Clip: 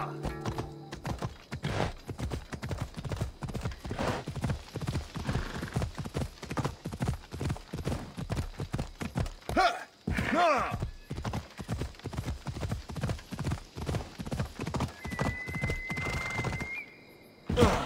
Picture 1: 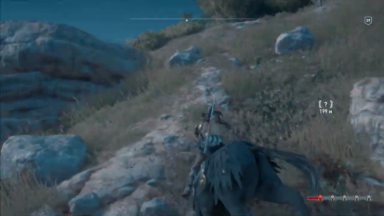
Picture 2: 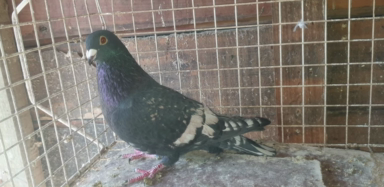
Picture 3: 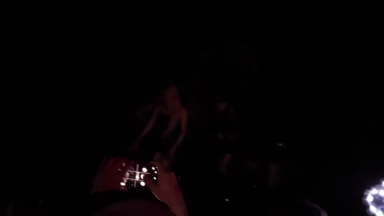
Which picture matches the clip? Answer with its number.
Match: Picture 1